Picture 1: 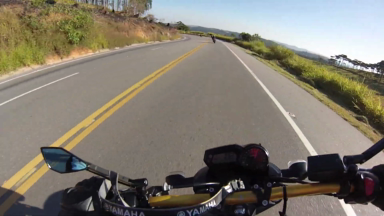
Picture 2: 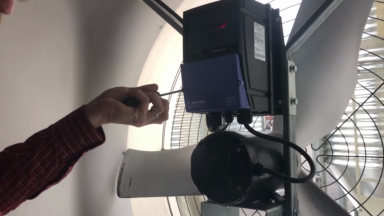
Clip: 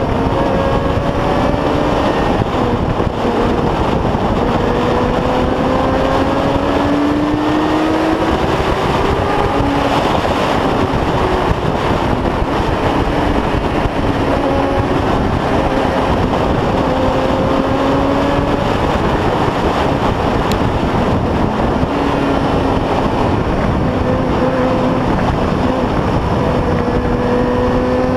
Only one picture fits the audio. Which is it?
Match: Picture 1